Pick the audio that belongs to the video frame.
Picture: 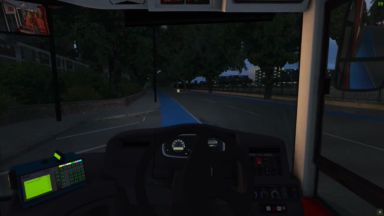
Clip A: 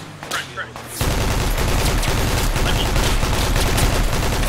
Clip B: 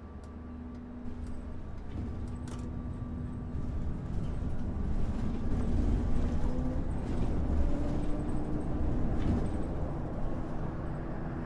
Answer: B